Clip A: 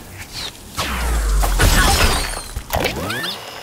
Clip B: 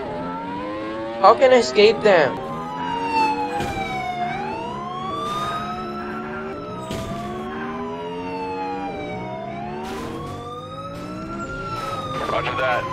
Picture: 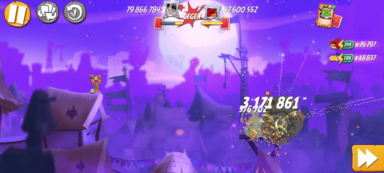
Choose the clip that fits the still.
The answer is A